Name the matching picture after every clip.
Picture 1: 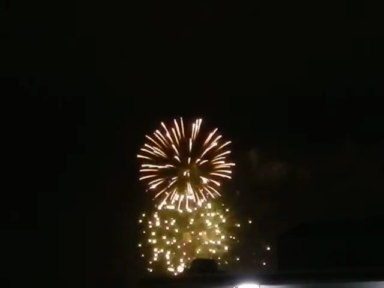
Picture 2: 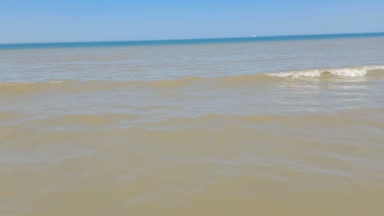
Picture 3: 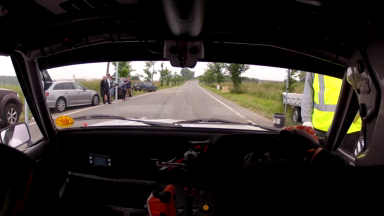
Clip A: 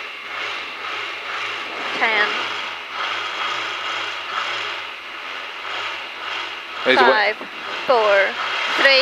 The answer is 3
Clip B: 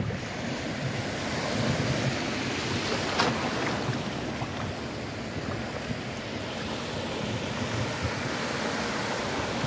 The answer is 2